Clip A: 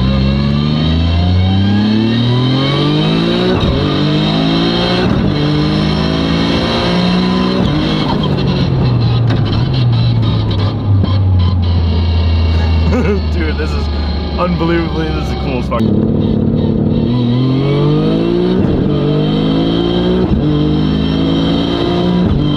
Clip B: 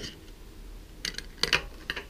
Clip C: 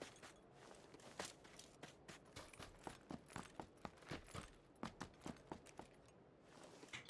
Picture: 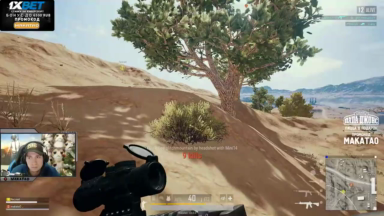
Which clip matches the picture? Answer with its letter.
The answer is C